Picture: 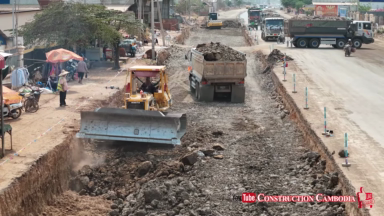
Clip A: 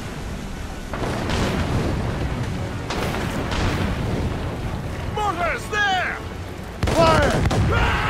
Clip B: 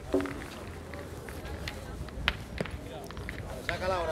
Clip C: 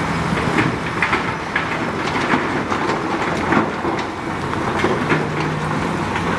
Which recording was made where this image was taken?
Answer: C